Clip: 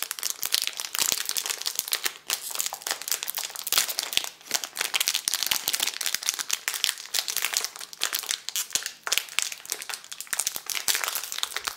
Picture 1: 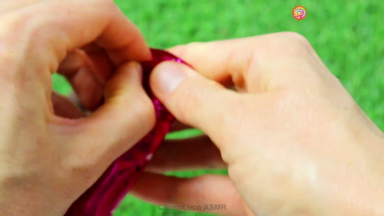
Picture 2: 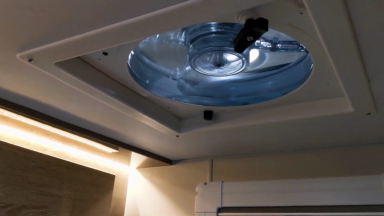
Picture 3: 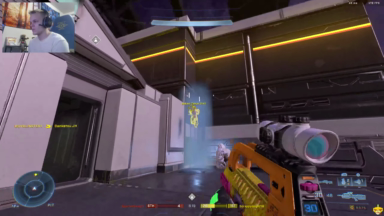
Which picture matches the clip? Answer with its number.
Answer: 1